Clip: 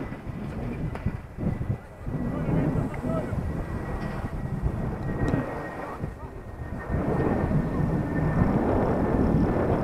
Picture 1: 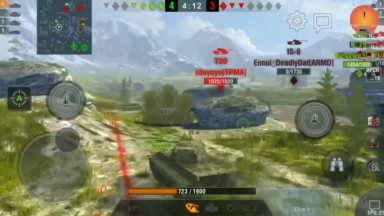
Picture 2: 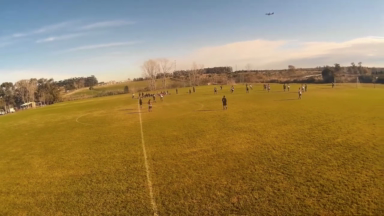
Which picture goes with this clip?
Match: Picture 2